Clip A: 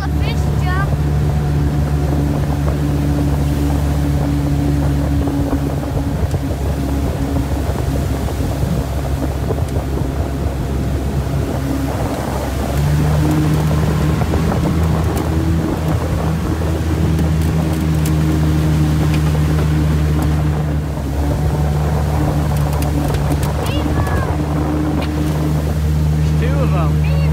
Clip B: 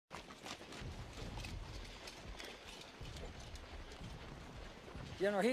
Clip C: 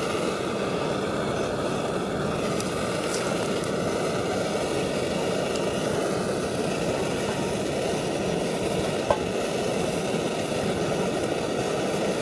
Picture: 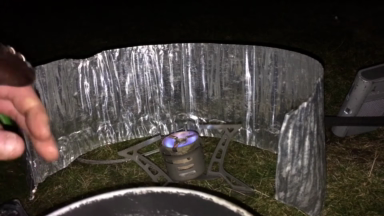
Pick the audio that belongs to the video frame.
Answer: C